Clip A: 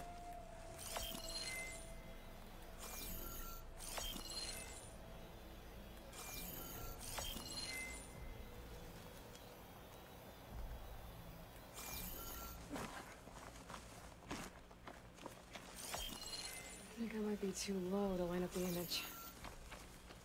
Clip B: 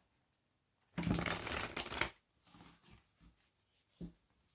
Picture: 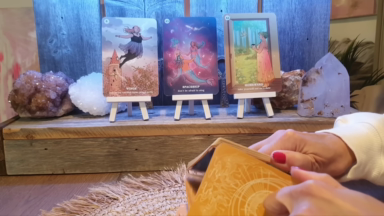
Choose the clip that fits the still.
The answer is B